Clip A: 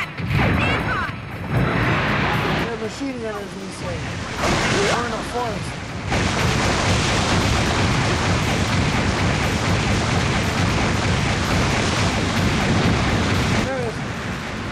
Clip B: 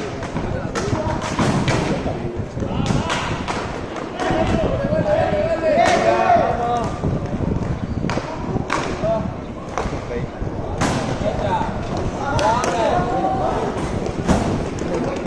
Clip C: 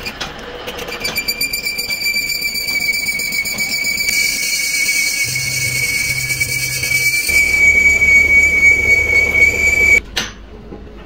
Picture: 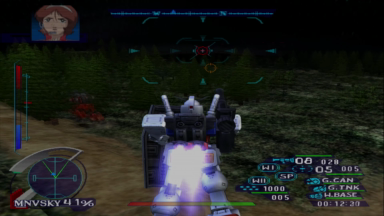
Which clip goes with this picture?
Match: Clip A